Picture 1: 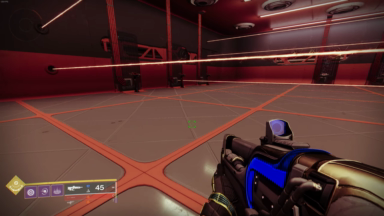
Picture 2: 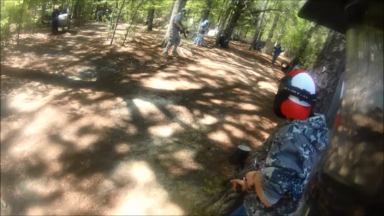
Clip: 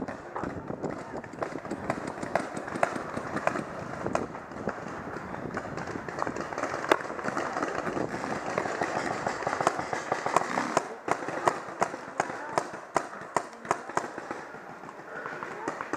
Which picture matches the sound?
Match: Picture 2